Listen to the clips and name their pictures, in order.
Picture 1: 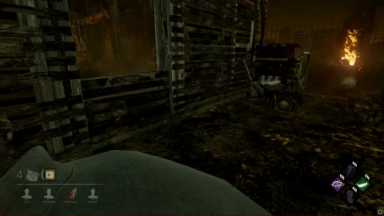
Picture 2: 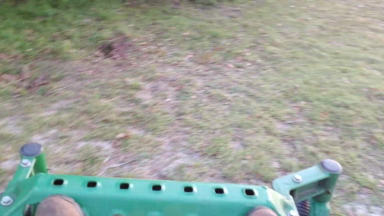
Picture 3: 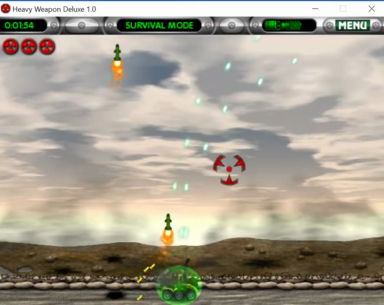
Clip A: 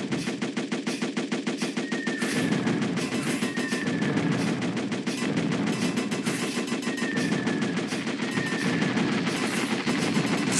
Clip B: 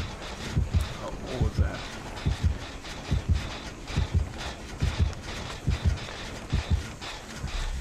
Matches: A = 3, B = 1